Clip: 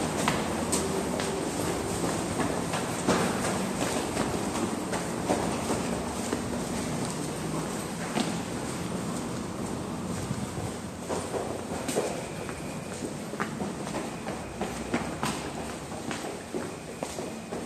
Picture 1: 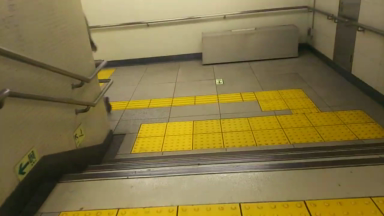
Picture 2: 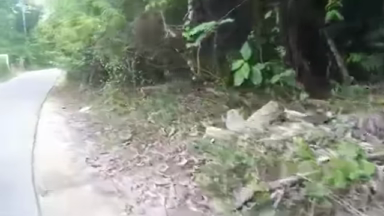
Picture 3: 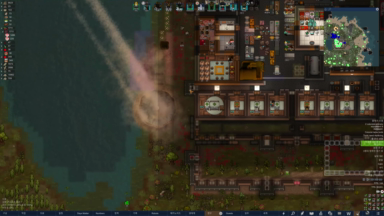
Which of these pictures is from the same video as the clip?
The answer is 1